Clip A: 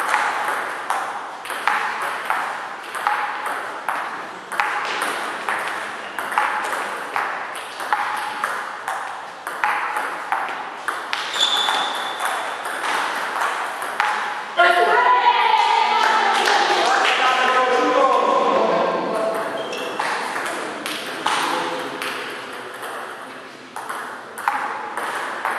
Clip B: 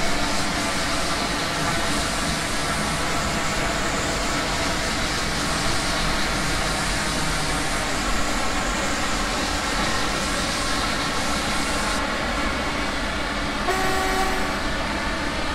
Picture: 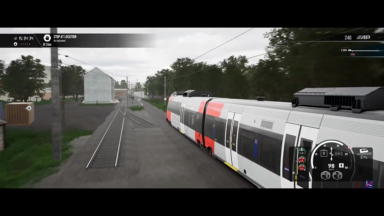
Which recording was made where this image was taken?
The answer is B